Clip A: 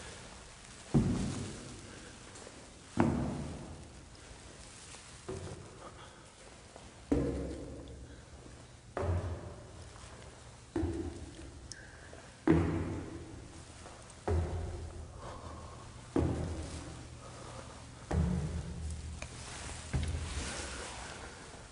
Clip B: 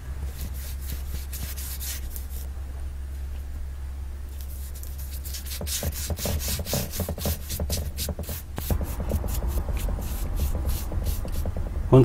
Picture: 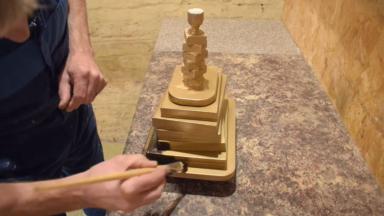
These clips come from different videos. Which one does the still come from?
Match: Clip B